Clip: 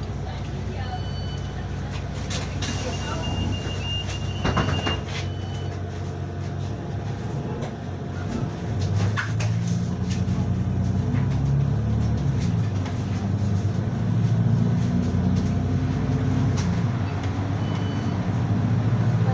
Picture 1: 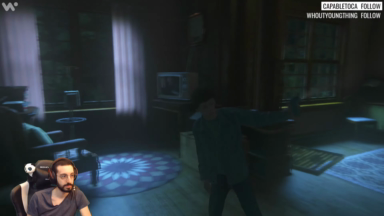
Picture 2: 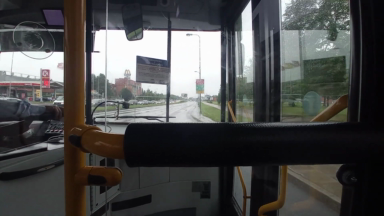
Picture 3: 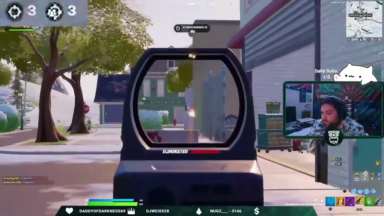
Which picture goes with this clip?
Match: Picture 2